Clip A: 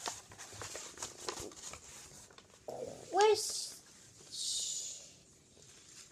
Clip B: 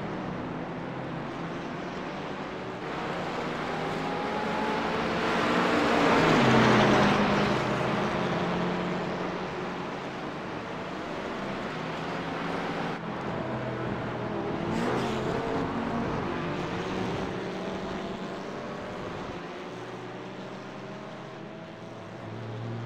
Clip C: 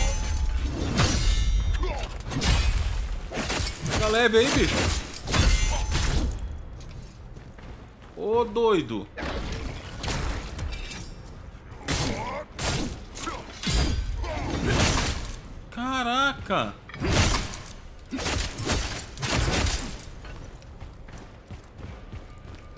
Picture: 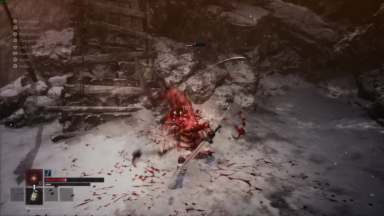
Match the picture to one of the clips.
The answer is C